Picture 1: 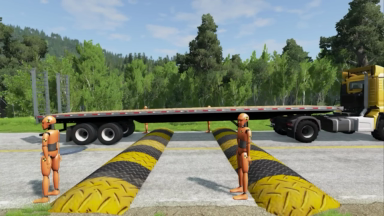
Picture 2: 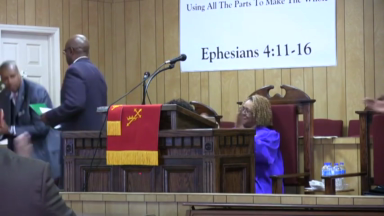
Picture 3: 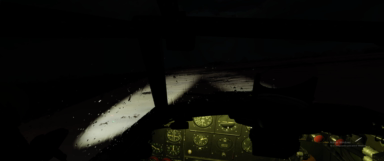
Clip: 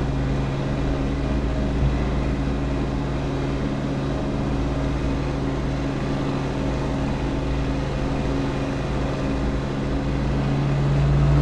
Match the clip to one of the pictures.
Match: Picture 3